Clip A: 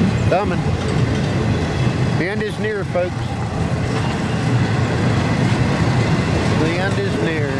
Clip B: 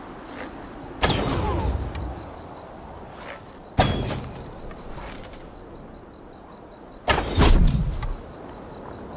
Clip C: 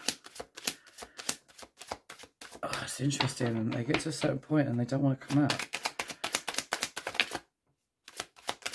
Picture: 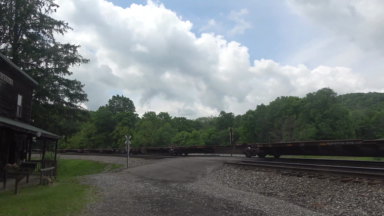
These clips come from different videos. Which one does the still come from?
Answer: A